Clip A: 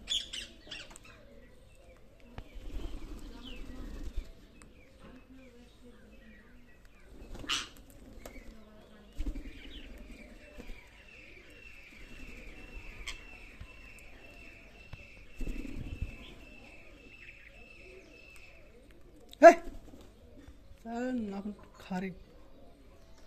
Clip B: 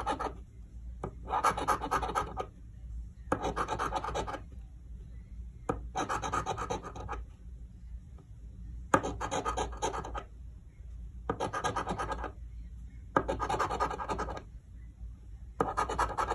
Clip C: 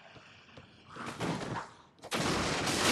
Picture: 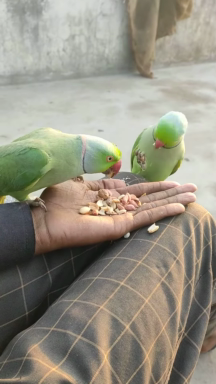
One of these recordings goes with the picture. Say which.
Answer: A